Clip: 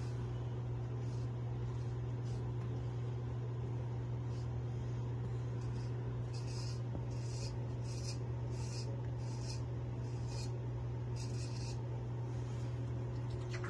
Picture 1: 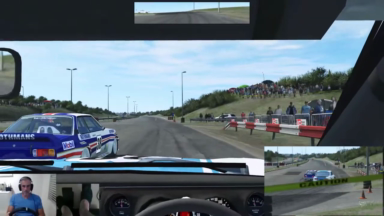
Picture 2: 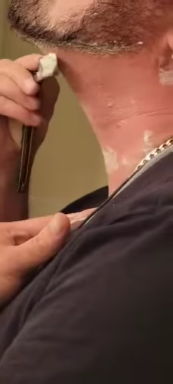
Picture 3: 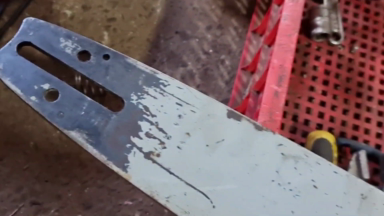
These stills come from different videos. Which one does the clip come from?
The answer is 2